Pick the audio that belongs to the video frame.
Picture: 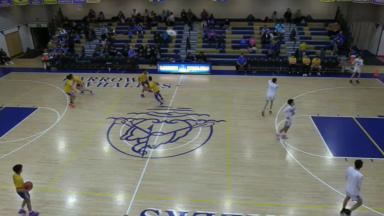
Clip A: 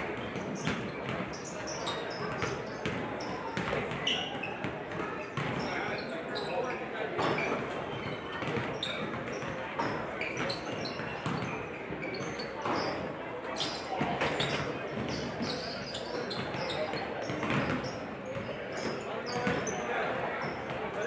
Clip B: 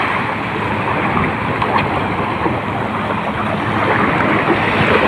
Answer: A